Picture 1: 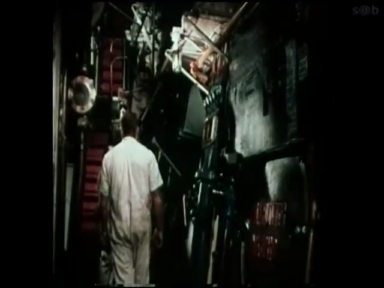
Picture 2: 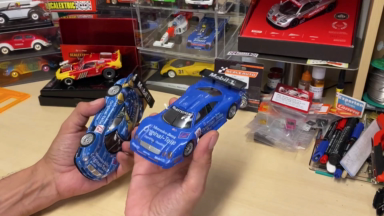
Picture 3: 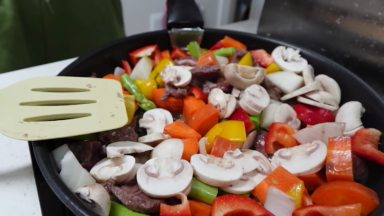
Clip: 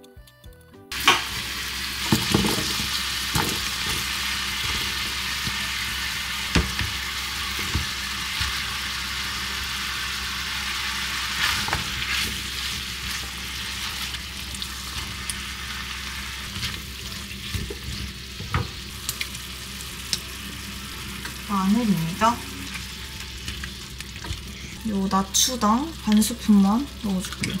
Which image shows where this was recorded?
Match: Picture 3